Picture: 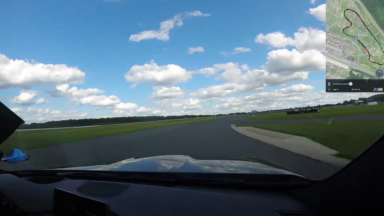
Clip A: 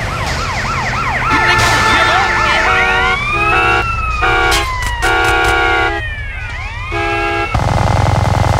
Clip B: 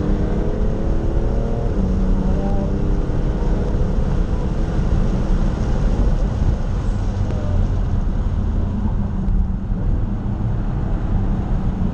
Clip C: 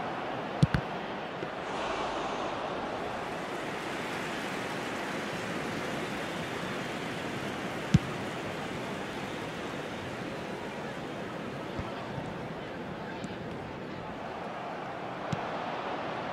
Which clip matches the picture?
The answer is B